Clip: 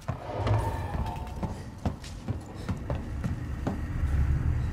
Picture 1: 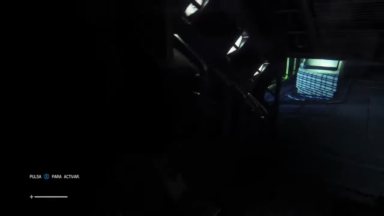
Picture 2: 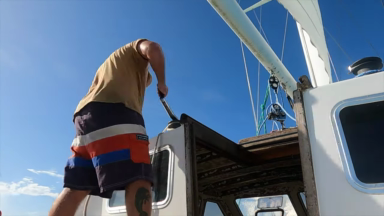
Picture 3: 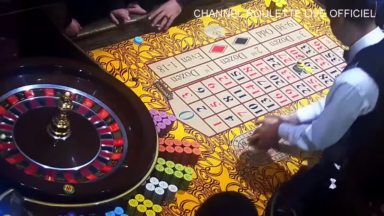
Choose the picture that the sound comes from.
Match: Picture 1